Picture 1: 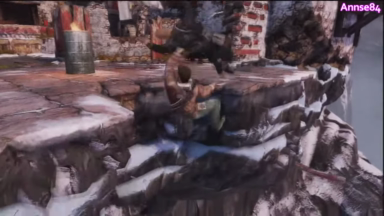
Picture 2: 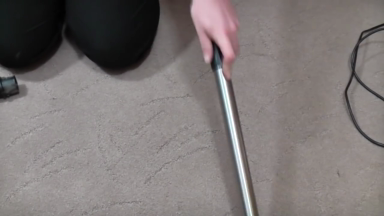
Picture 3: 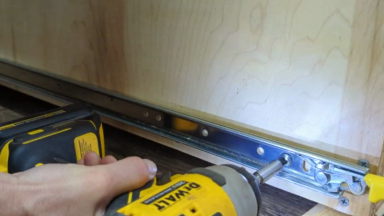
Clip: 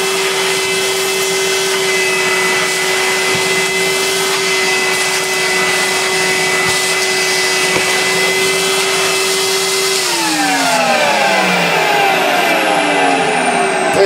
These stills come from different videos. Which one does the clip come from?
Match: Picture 2